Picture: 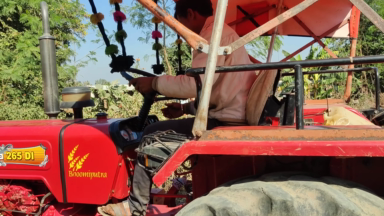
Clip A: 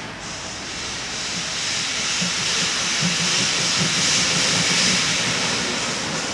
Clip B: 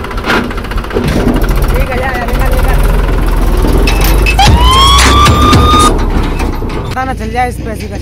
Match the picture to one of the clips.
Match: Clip B